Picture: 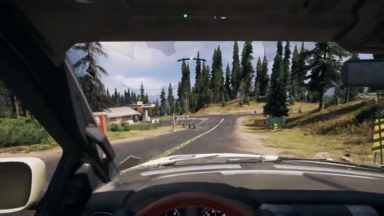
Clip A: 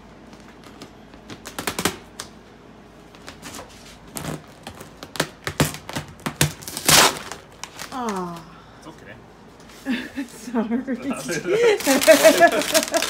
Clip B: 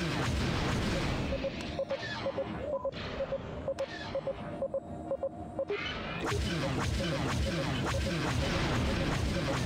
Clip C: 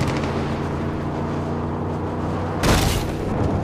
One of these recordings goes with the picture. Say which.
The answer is C